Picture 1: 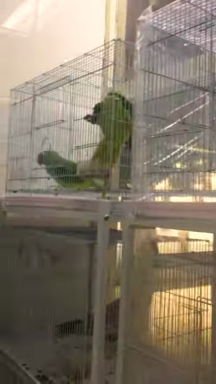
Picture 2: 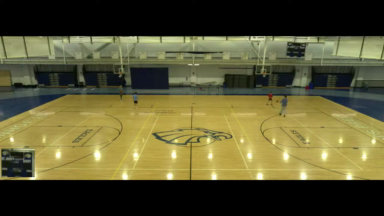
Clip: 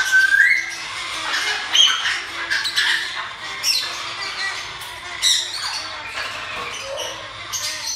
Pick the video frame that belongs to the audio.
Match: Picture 1